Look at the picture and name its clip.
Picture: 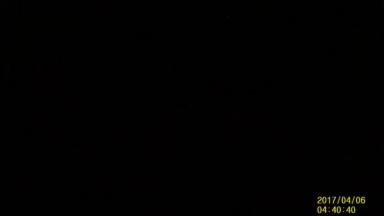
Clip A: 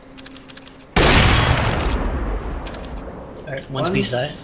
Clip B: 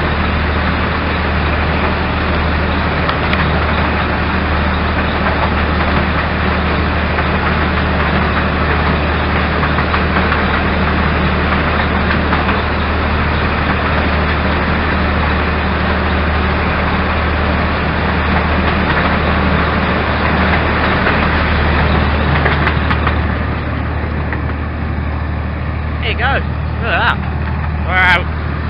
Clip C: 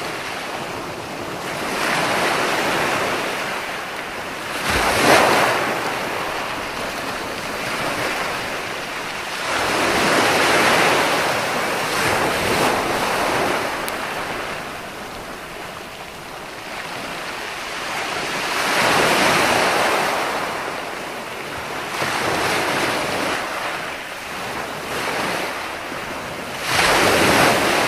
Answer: B